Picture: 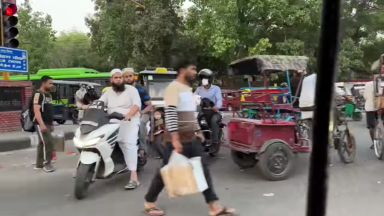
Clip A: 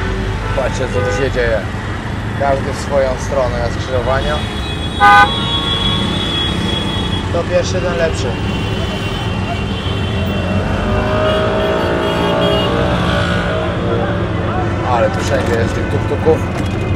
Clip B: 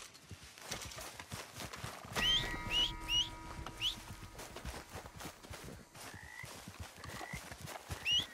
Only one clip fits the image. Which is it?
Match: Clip A